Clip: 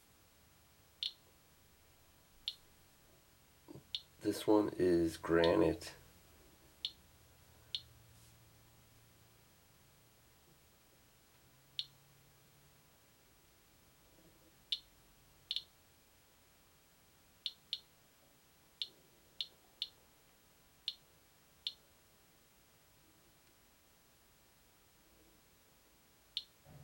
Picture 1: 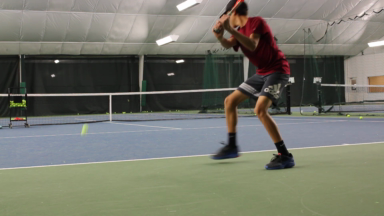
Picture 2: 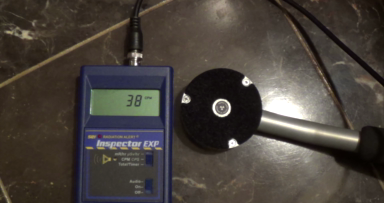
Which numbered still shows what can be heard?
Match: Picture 2